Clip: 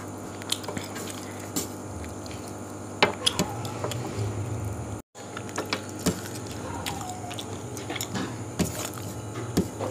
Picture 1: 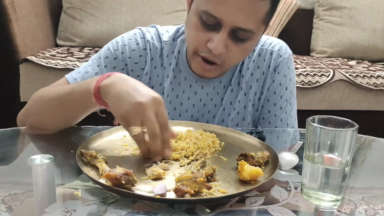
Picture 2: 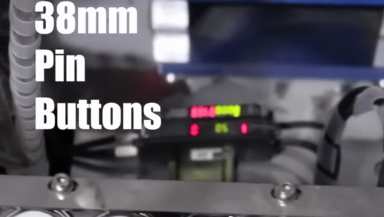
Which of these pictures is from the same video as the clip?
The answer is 1